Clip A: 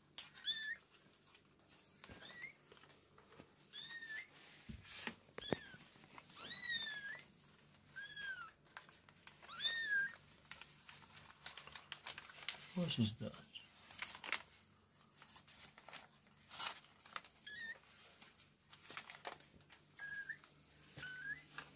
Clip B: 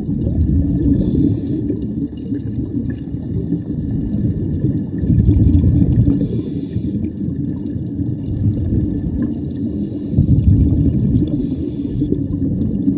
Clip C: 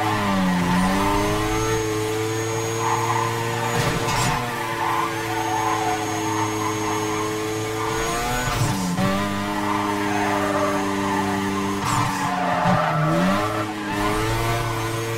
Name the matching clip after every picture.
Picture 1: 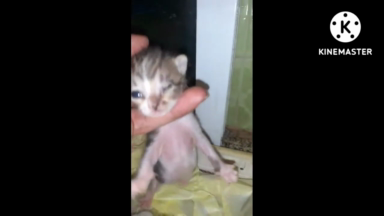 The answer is A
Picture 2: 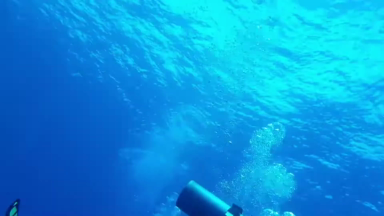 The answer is B